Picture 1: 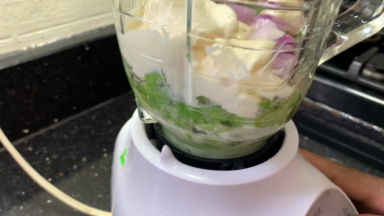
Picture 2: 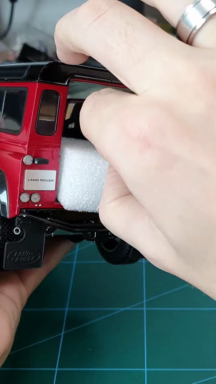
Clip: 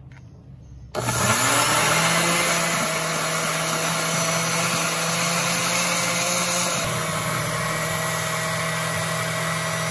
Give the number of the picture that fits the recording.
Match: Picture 1